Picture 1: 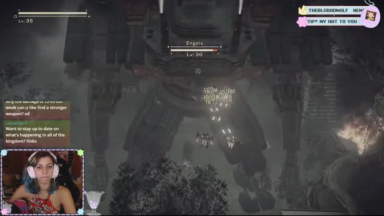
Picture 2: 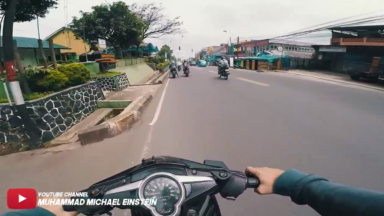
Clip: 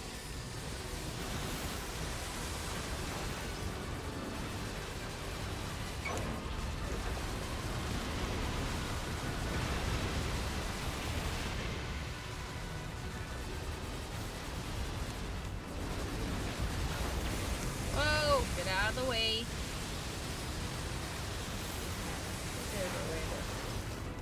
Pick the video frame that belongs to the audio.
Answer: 1